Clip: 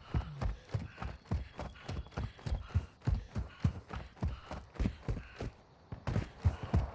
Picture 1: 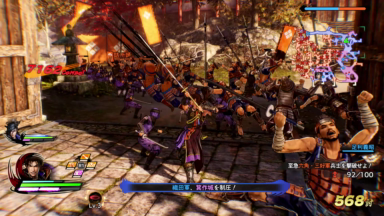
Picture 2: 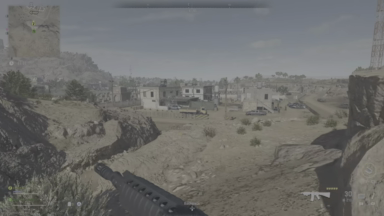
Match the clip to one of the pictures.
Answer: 2